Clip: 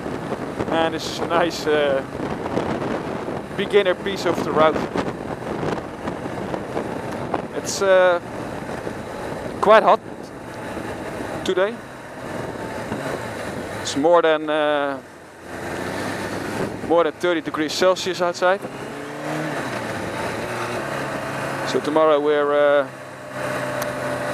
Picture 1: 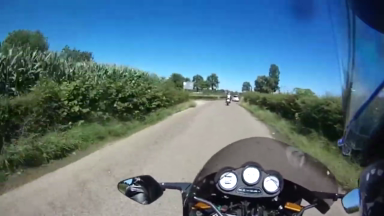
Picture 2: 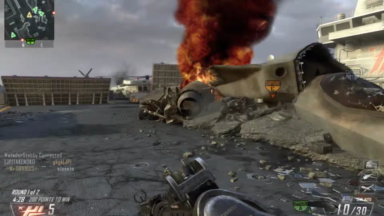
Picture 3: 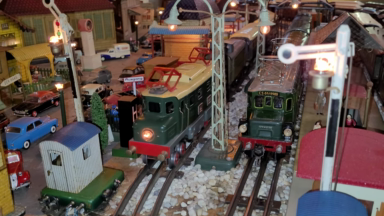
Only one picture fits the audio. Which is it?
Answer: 1